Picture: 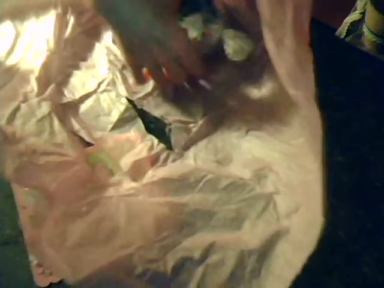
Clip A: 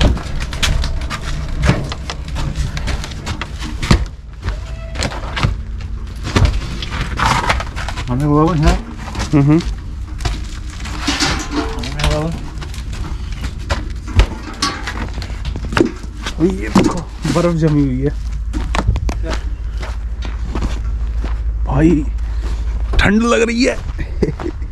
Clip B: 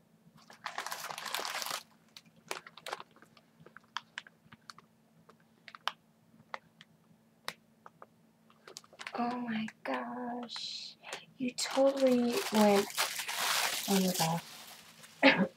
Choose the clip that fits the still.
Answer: B